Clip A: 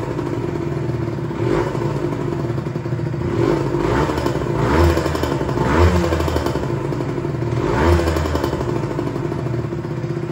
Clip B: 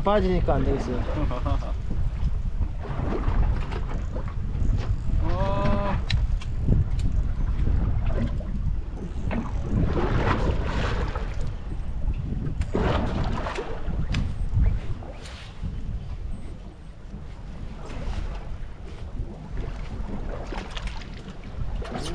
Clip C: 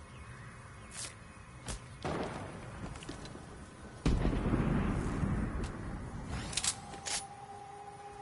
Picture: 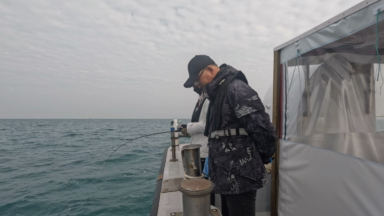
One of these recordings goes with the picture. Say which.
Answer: B